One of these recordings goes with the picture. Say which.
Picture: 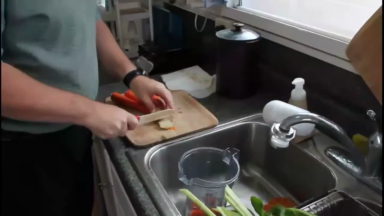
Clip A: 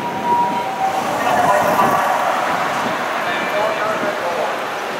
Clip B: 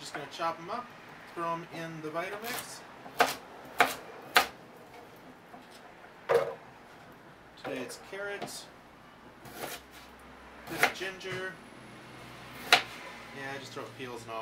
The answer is B